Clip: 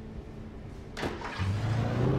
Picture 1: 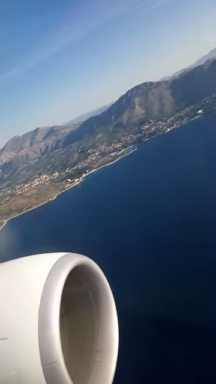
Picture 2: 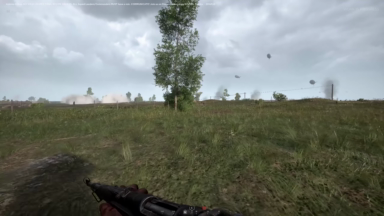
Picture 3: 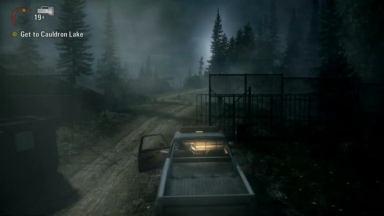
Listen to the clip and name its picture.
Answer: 3